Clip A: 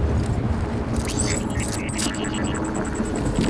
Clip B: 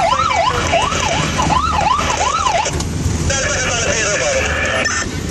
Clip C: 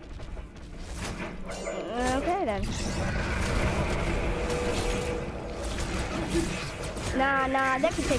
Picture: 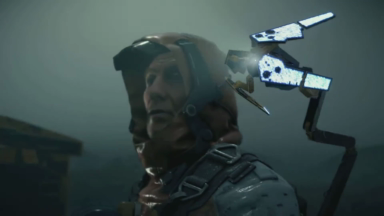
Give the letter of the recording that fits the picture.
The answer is A